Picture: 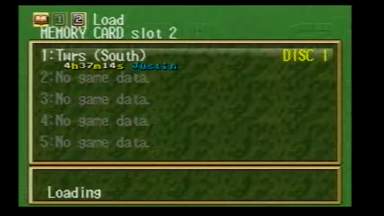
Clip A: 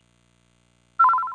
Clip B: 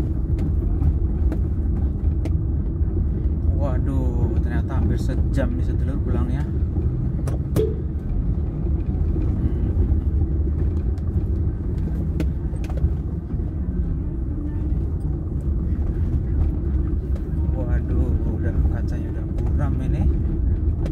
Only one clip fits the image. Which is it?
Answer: A